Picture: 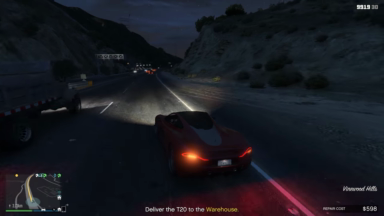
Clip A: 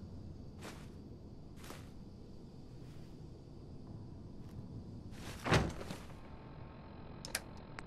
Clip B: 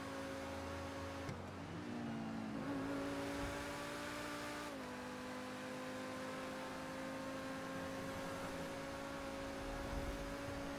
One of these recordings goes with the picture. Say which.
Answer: B